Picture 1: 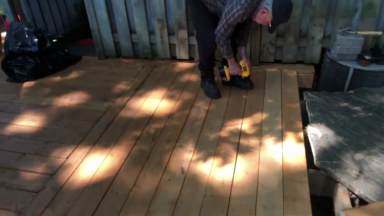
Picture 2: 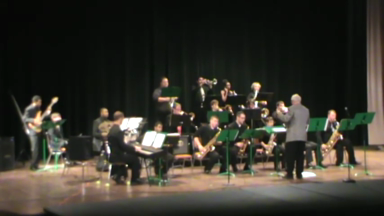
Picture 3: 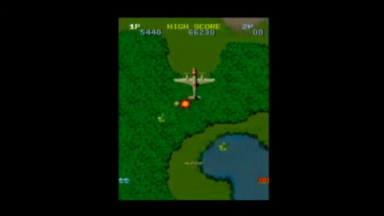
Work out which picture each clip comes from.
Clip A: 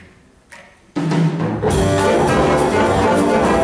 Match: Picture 2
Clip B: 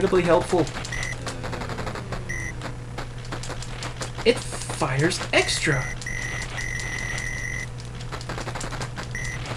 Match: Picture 3